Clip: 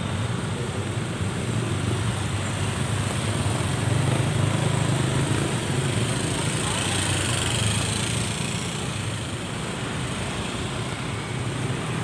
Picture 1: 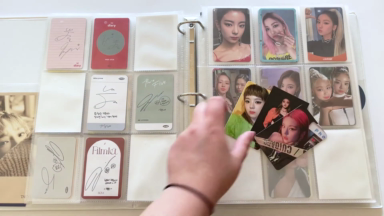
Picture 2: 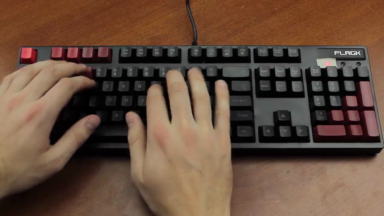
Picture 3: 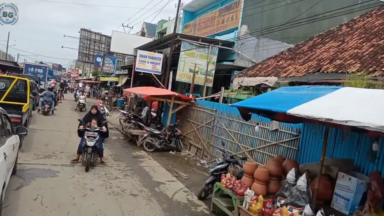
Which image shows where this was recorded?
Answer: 3